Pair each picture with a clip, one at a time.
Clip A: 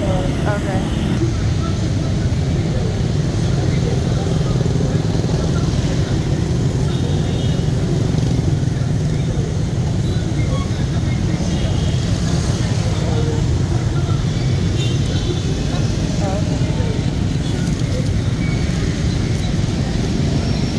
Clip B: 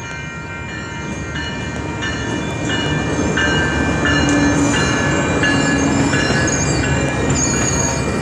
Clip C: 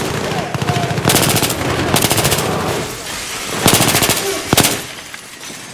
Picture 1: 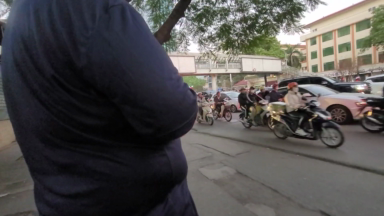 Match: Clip A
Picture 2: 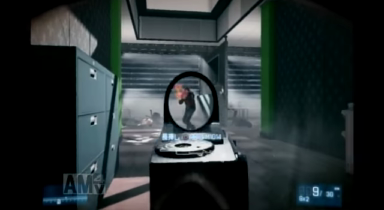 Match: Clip C